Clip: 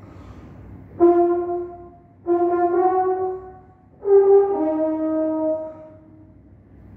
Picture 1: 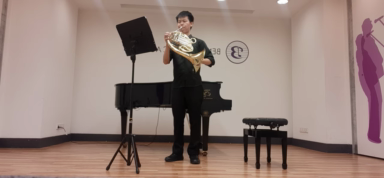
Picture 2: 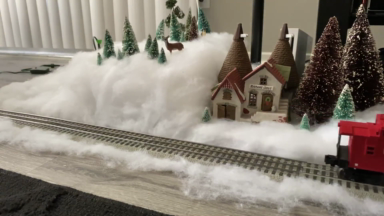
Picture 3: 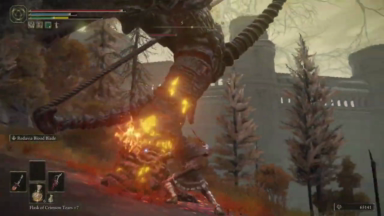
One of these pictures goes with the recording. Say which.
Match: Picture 1